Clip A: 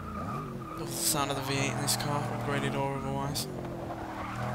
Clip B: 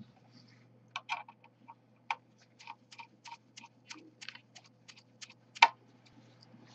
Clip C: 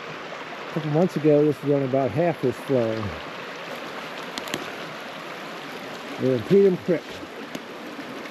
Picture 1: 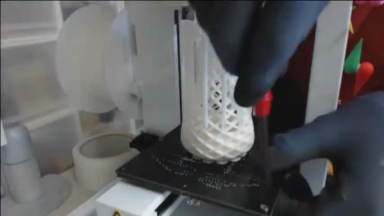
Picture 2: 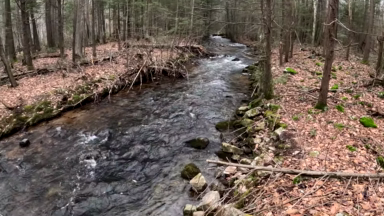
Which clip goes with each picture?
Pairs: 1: B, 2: C